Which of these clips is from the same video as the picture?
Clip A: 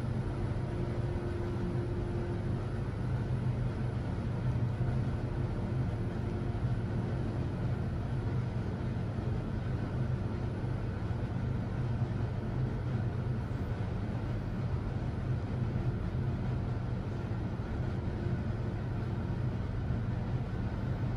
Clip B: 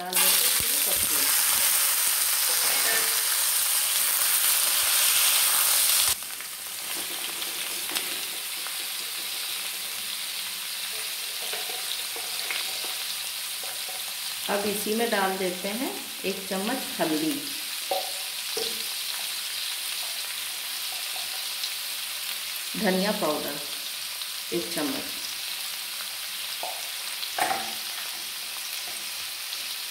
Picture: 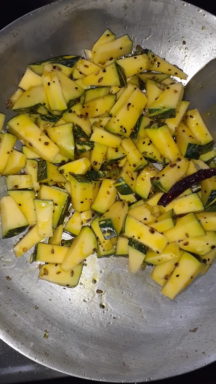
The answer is B